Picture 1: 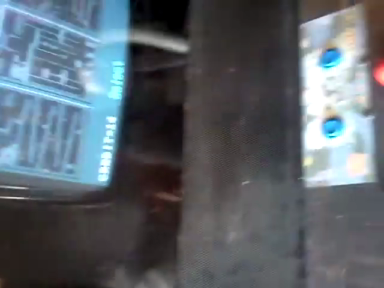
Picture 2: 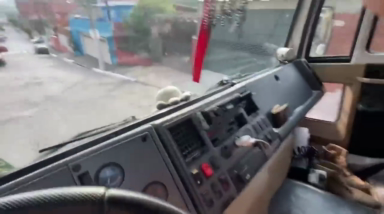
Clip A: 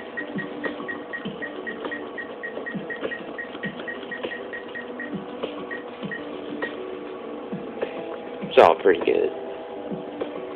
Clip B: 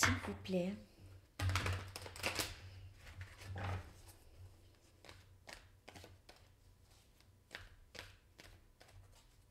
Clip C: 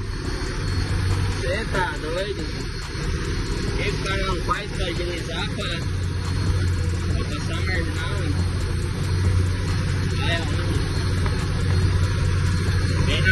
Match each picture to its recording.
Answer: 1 A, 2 C